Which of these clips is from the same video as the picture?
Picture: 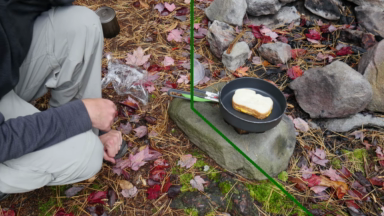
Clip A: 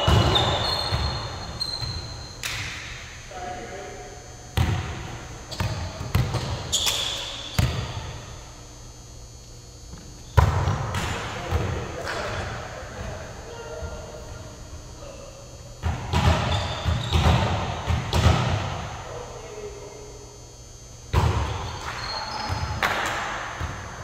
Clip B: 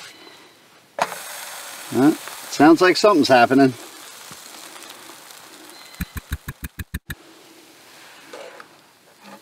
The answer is B